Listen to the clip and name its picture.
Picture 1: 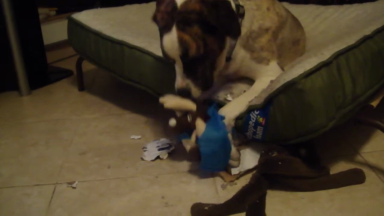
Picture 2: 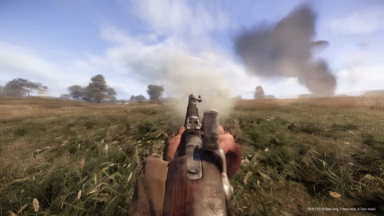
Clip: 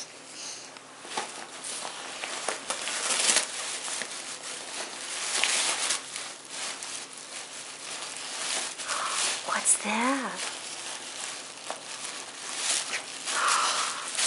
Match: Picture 1